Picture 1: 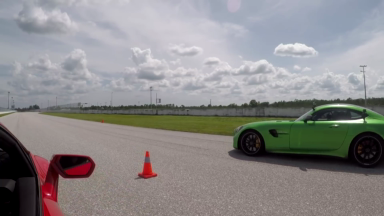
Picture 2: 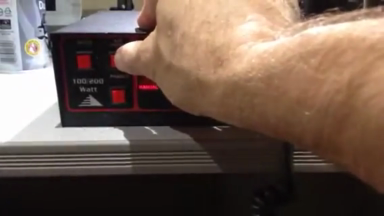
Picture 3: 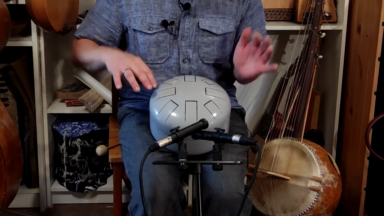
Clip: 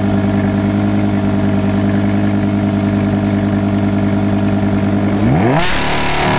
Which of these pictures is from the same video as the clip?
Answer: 1